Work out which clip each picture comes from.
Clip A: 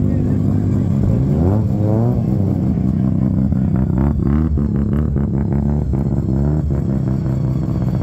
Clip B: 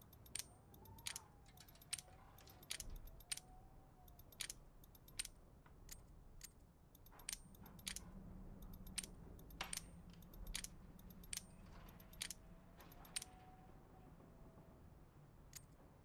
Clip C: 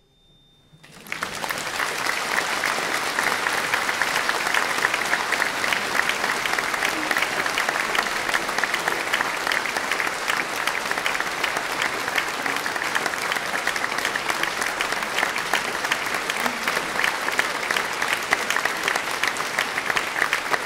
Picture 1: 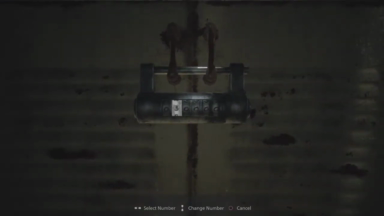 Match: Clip B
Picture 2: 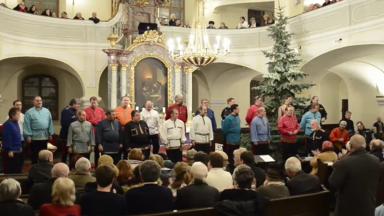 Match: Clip C